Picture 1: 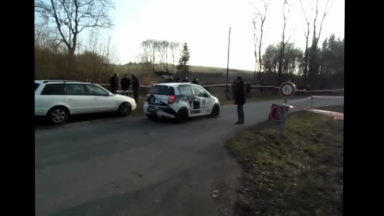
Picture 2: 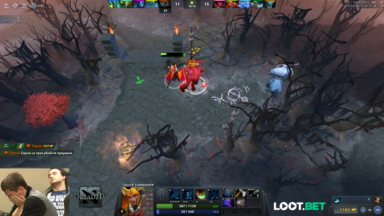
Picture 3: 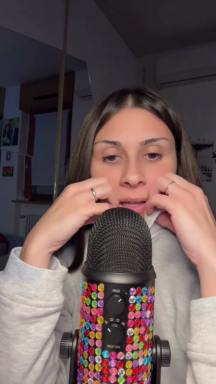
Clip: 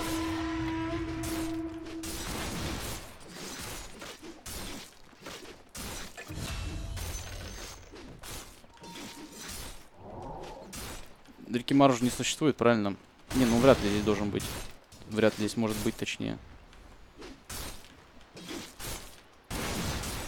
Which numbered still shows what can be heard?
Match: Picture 2